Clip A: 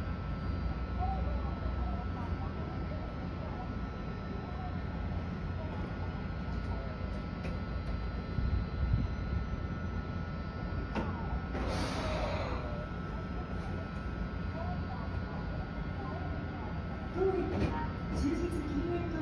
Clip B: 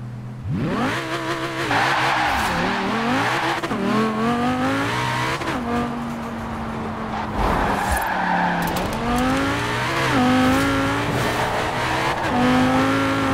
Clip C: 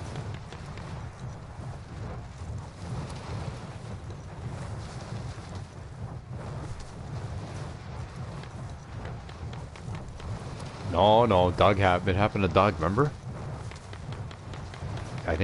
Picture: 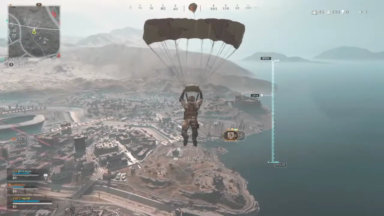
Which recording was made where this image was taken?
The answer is C